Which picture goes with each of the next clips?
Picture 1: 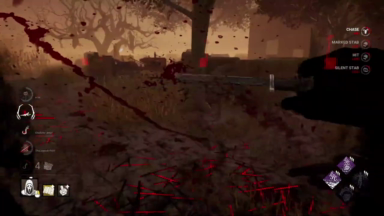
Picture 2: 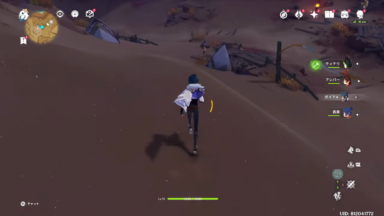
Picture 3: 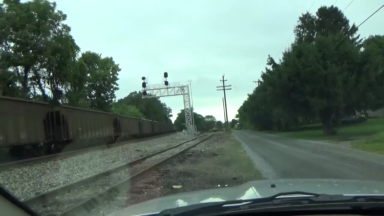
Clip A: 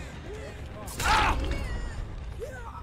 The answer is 1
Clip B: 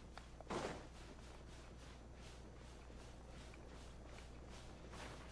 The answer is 2